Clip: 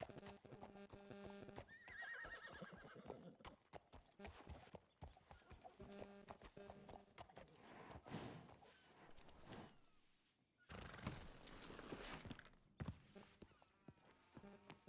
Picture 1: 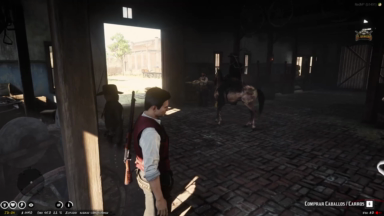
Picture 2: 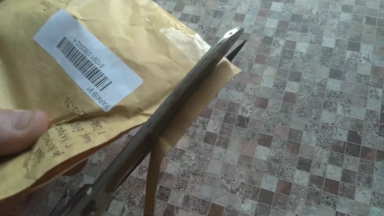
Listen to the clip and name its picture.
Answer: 1